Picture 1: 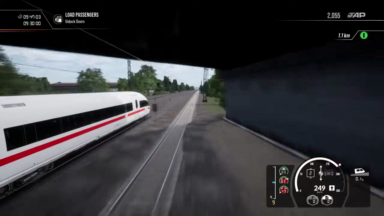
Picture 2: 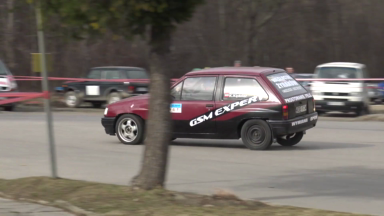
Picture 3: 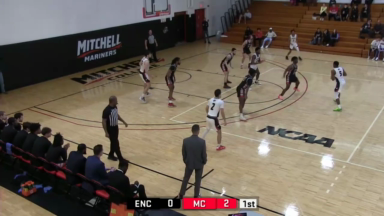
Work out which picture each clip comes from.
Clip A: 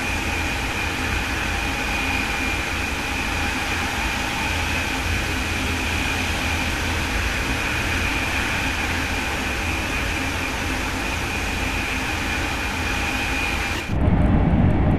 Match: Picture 1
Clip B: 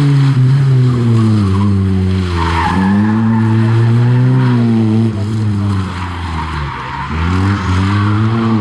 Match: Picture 2